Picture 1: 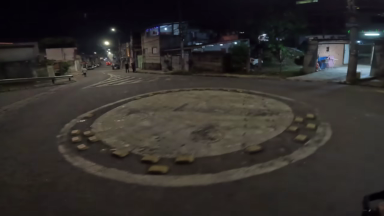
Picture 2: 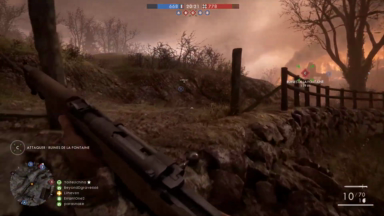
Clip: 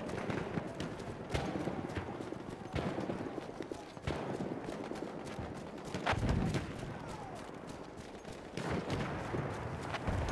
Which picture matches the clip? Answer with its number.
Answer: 2